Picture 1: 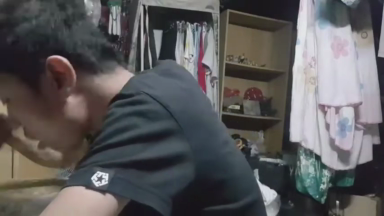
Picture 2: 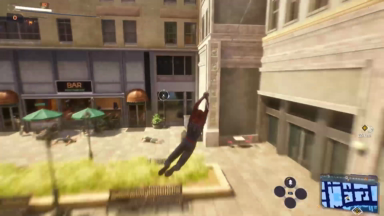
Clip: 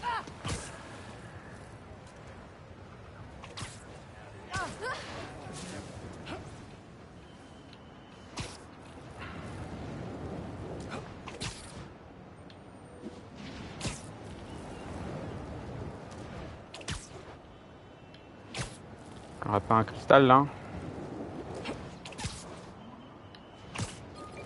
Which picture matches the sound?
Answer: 2